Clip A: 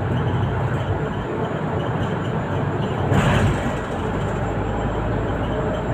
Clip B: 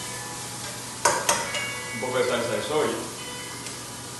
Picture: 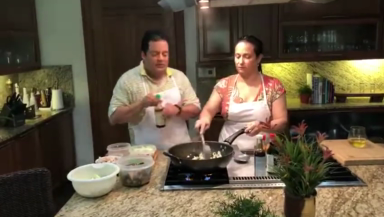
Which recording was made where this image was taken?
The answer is B